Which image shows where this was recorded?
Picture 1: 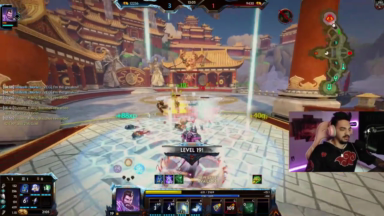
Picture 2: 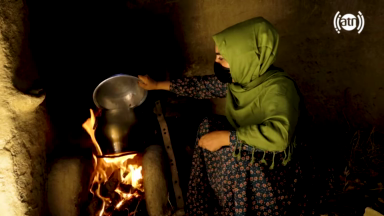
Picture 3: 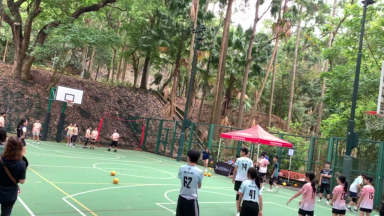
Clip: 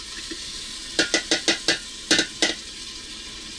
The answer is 2